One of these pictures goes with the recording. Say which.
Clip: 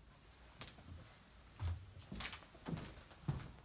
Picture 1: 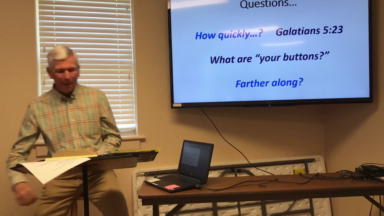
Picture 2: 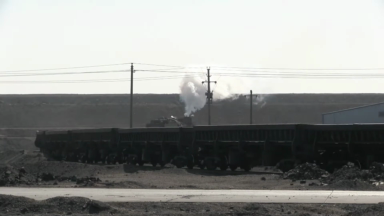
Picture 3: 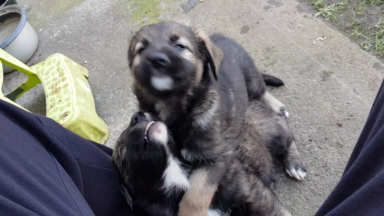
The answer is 1